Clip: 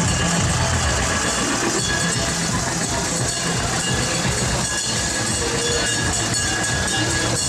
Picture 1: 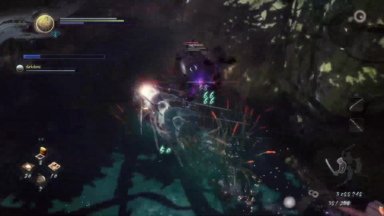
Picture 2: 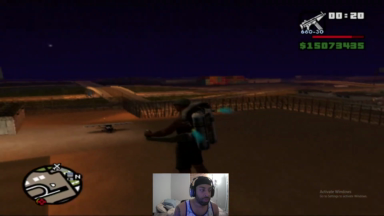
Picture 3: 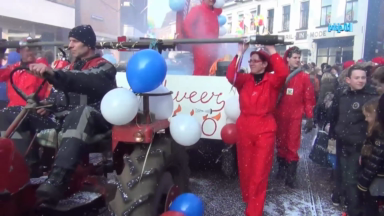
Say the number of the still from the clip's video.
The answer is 3